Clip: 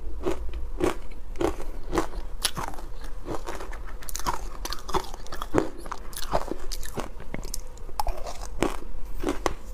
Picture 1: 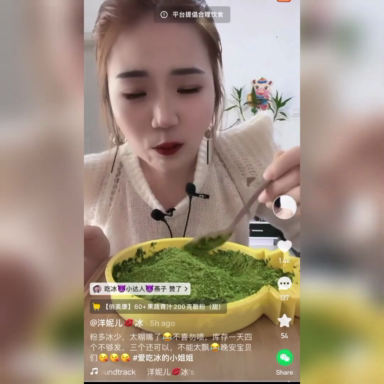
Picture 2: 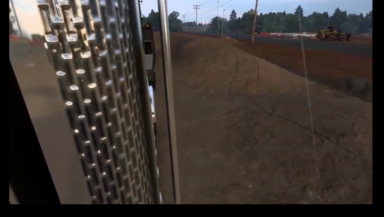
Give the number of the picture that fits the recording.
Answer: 1